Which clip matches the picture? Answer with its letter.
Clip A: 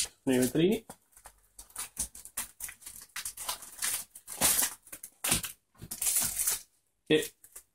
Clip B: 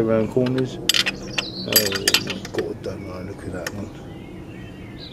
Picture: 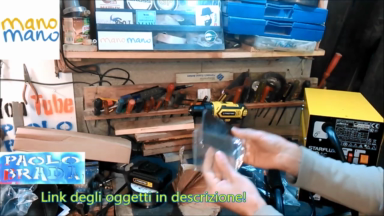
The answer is A